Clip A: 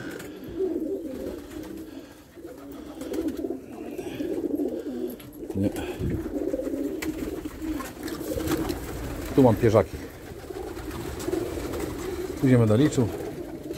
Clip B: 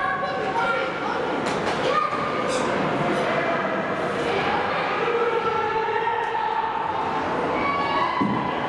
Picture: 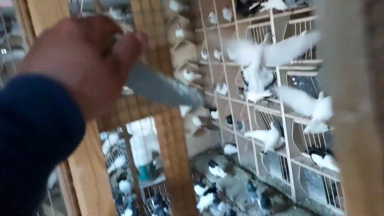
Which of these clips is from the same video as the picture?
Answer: A